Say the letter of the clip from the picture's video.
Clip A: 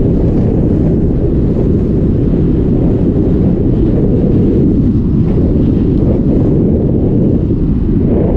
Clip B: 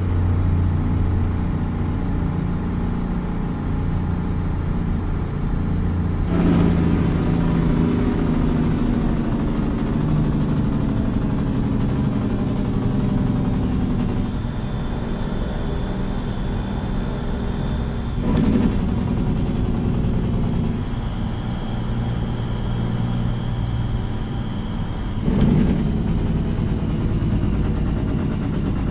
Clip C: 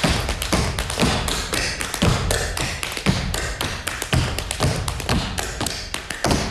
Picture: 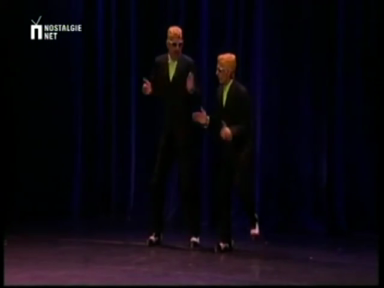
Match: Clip C